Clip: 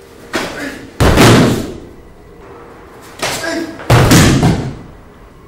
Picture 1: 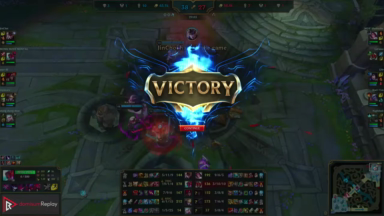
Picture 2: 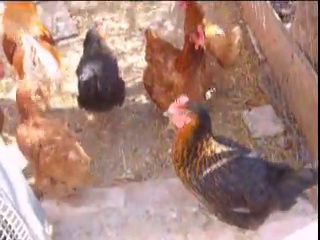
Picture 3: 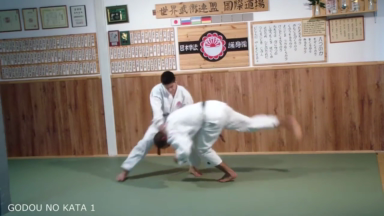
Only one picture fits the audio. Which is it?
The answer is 3